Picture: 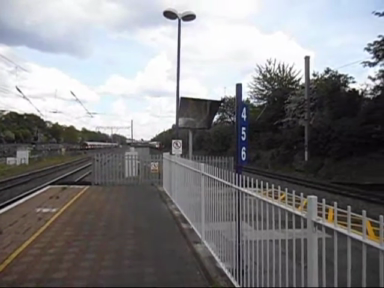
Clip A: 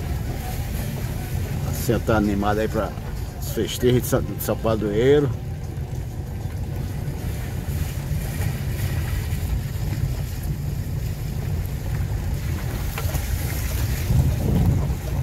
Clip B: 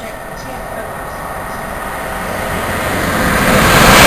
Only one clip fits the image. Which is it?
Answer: B